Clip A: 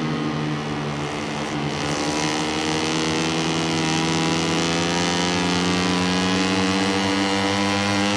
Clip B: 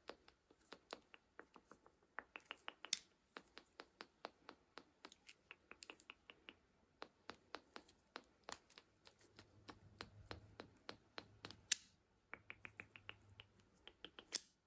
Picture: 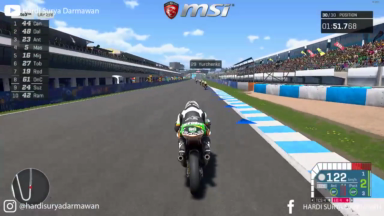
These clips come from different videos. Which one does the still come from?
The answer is A